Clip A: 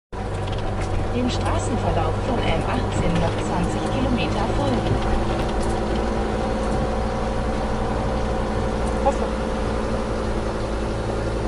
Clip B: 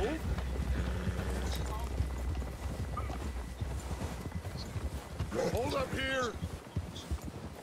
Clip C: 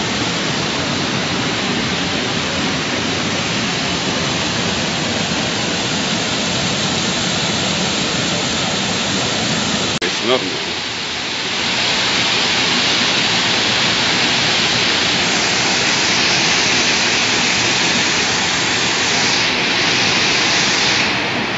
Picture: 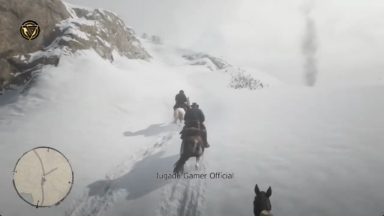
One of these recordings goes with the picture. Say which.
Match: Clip B